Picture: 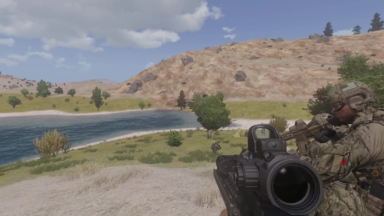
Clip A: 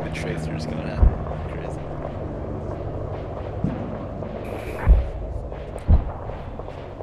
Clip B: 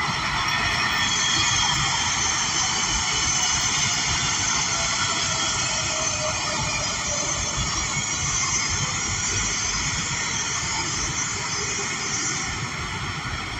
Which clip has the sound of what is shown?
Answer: A